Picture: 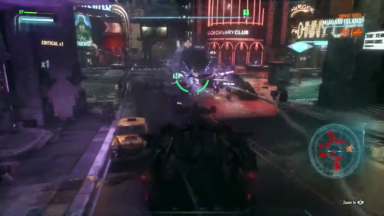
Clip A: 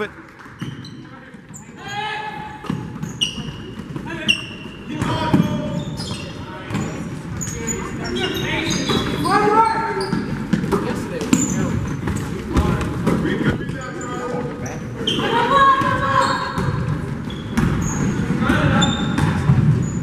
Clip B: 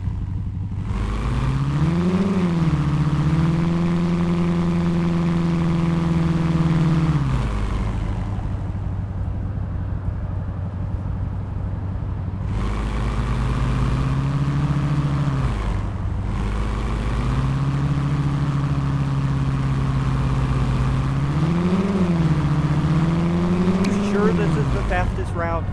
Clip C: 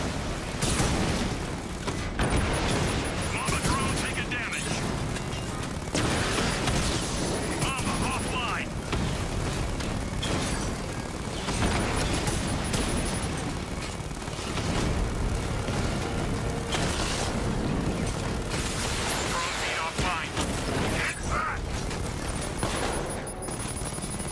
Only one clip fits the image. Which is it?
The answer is C